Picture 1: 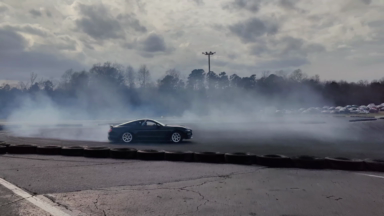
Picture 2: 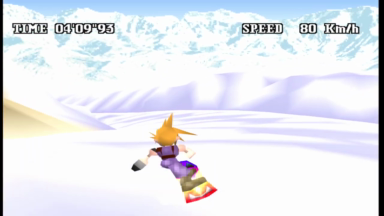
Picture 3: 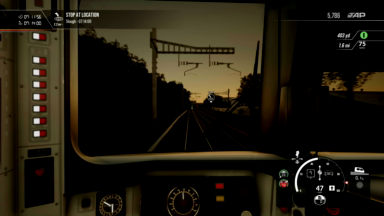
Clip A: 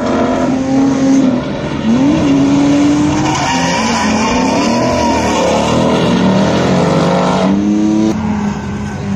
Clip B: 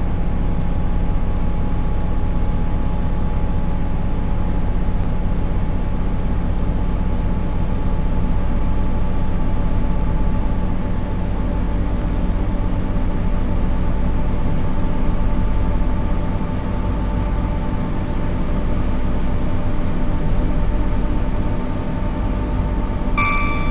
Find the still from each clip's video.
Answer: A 1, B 3